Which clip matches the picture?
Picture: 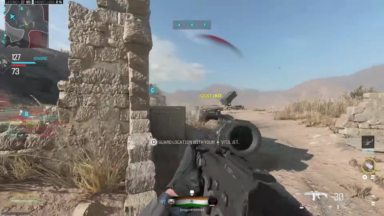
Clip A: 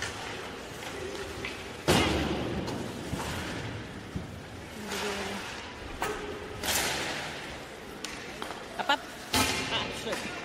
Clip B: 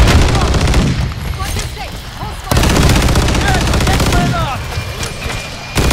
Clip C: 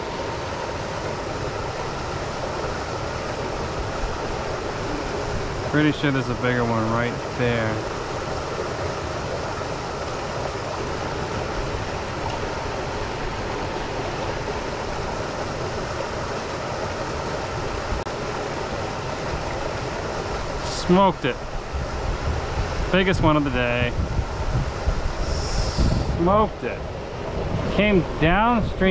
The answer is B